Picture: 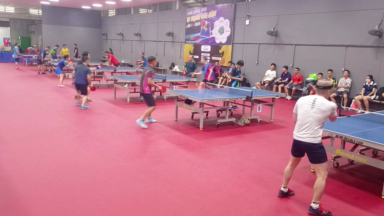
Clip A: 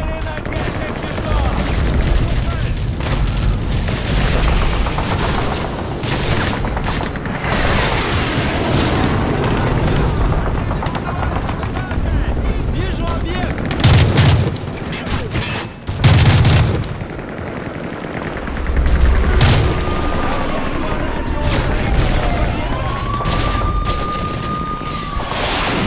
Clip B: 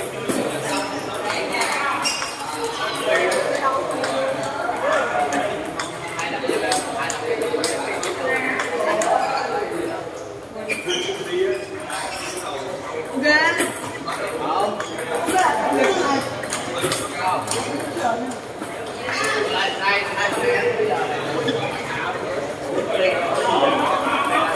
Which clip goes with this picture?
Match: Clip B